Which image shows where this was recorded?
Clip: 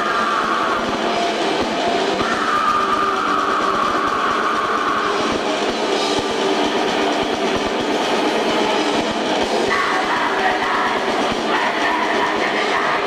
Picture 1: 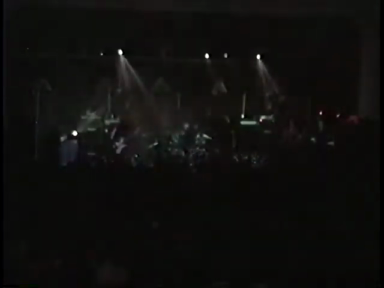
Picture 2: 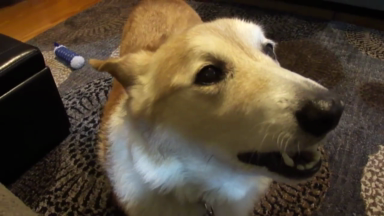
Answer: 1